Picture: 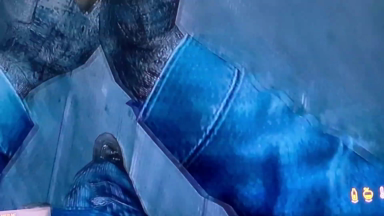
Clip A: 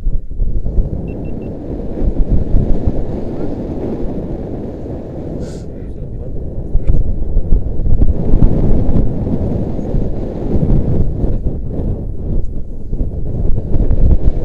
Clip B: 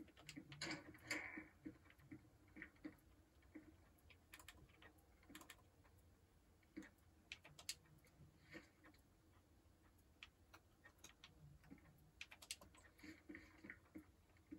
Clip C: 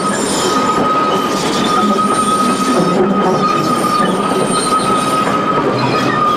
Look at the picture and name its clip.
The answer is B